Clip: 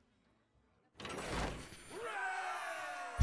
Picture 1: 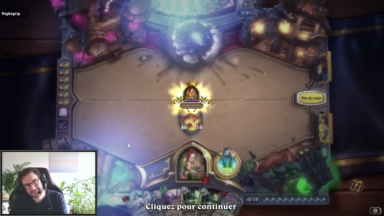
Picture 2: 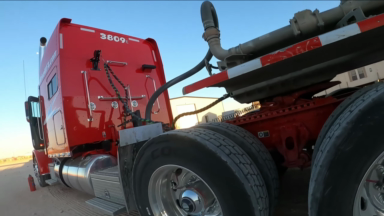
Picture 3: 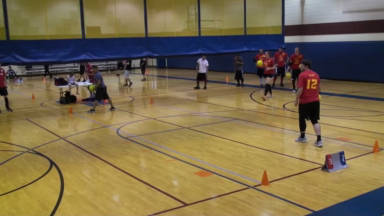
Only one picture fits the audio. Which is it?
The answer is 1